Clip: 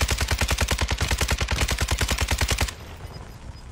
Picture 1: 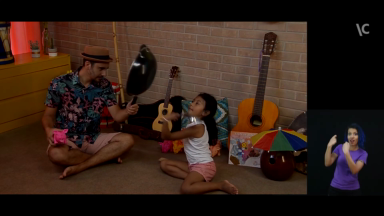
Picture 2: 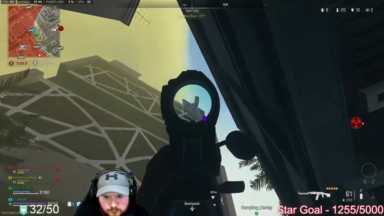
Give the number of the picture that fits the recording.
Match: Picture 2